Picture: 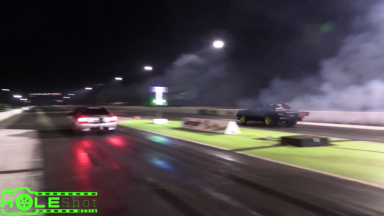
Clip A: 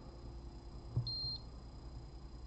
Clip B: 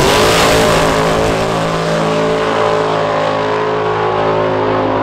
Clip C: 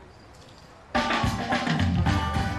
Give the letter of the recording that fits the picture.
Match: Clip B